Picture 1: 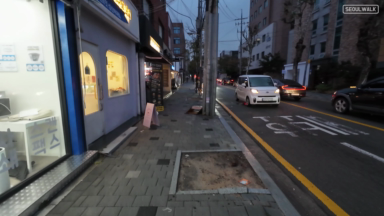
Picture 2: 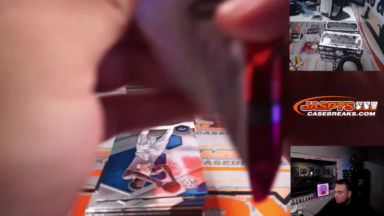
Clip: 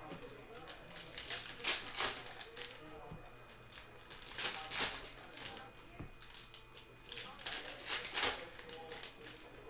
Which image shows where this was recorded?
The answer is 2